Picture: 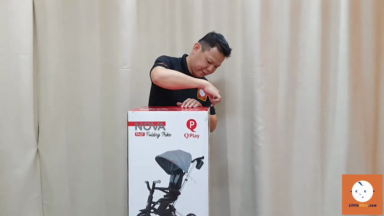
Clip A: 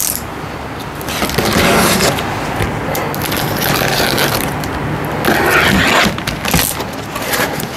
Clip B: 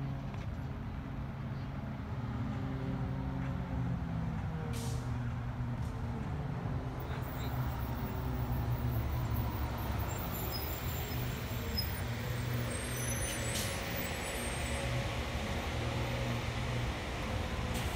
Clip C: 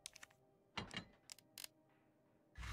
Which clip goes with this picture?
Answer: A